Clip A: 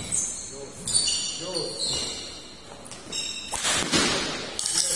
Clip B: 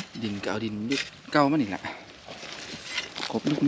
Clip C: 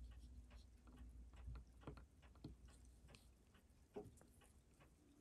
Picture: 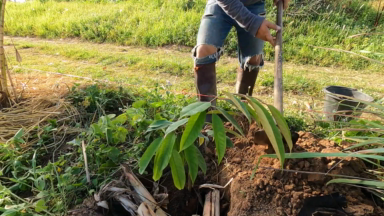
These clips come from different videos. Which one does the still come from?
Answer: B